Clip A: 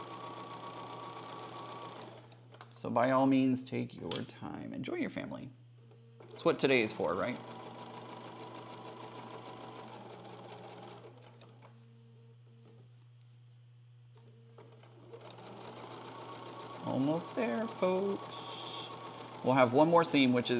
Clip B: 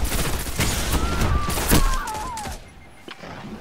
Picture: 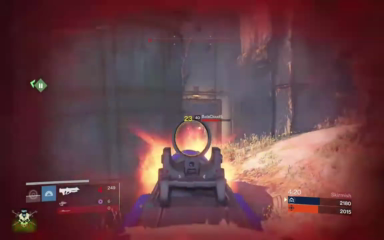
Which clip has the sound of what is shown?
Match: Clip B